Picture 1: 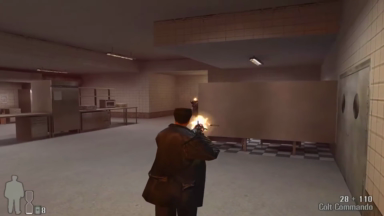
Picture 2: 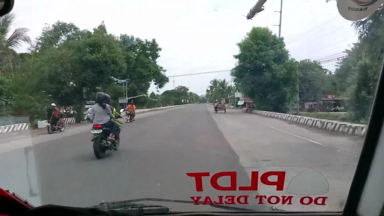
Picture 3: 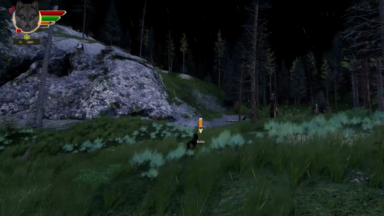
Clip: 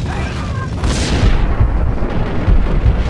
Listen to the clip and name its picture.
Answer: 1